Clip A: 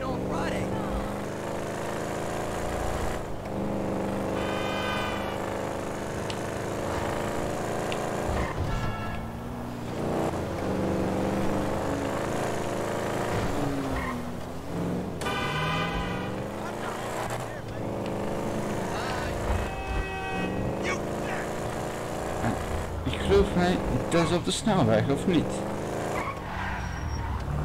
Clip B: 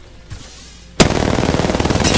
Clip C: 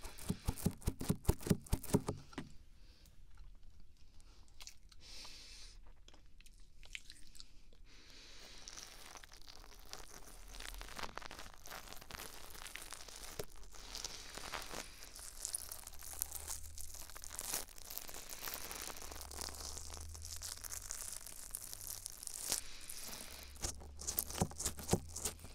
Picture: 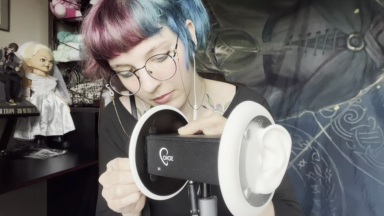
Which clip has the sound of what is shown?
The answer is C